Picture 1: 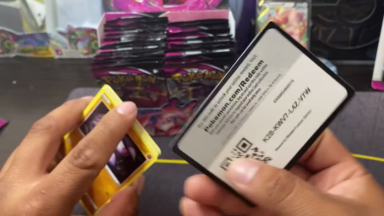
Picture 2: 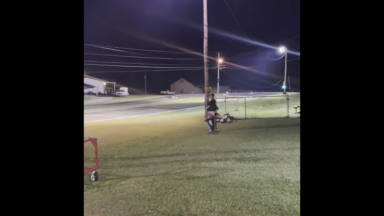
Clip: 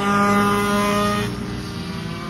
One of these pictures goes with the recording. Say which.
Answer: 2